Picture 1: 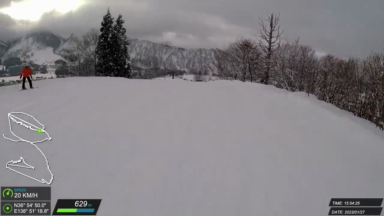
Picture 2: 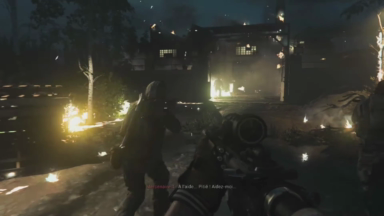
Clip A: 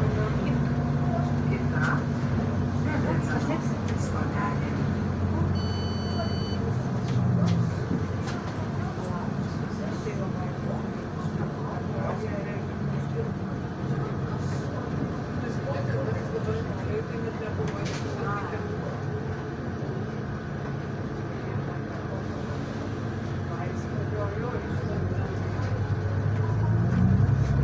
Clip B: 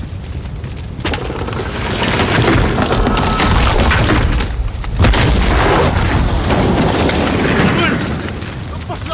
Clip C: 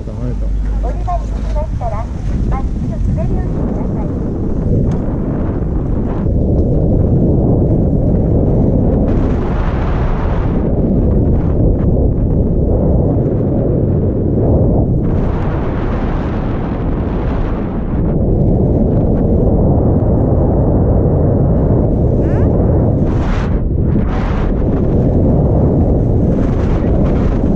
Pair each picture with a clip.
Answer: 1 C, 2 B